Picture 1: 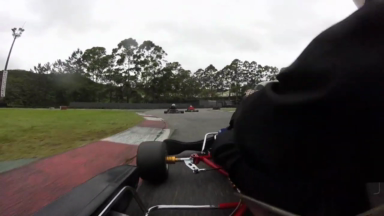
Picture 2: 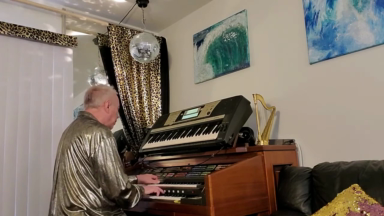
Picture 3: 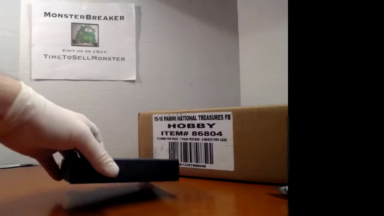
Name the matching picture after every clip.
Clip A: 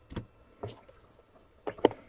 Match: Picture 3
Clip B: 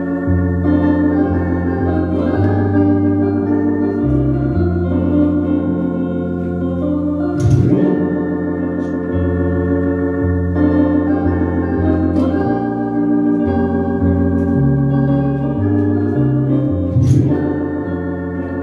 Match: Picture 2